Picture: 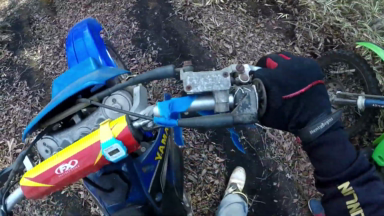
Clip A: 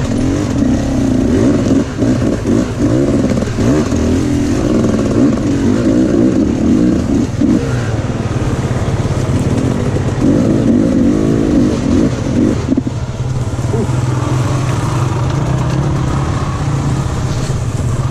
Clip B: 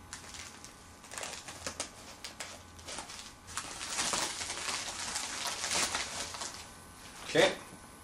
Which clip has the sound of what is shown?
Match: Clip A